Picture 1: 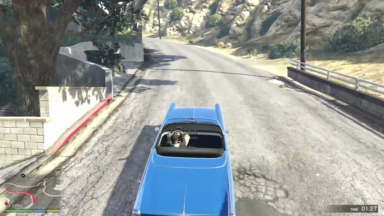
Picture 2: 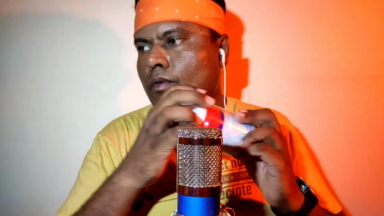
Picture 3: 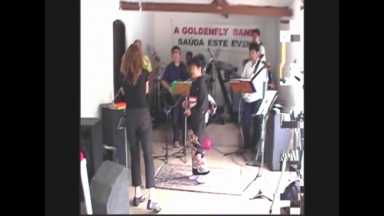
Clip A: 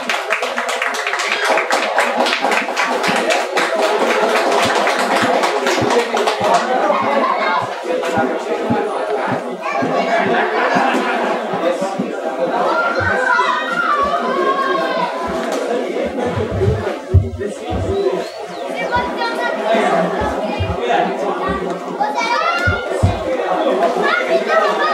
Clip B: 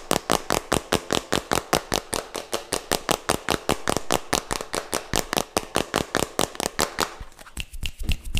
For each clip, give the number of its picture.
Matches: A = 3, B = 2